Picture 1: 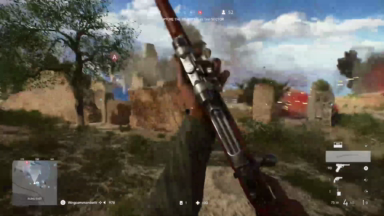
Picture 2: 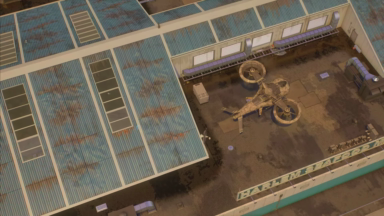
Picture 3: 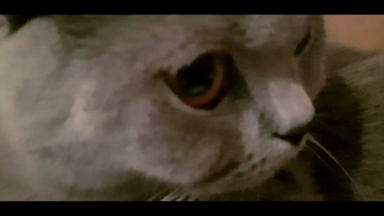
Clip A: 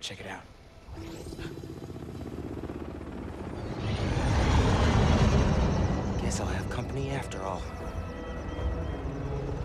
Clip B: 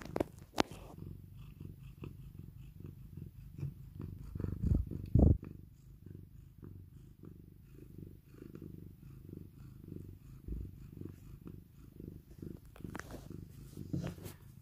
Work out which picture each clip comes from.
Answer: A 2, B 3